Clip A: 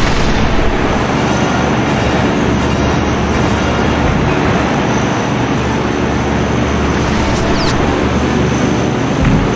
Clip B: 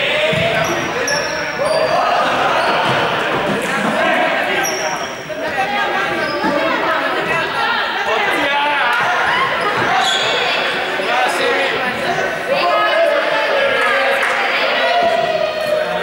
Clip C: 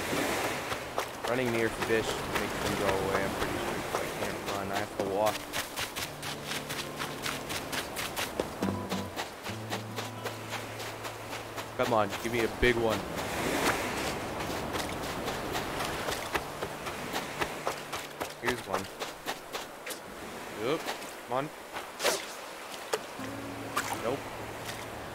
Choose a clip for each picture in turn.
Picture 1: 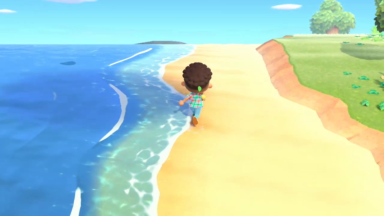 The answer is C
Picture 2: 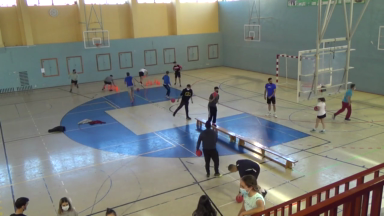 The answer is B